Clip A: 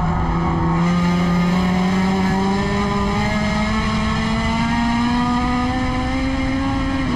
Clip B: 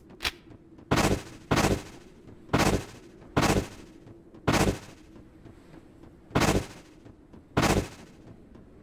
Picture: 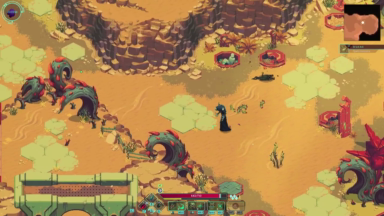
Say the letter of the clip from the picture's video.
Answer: B